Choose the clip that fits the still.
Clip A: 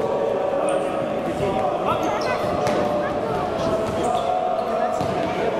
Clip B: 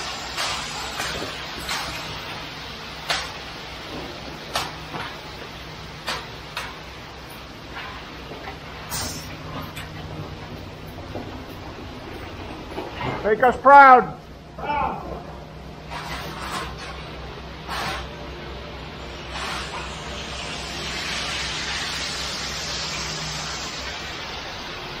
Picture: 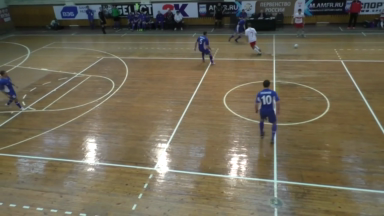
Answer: A